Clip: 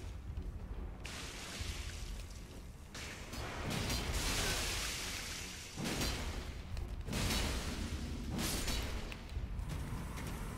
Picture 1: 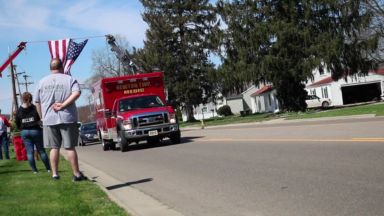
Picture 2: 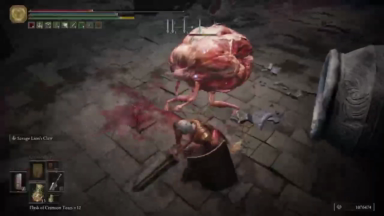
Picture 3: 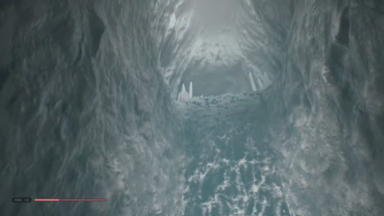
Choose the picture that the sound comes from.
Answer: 2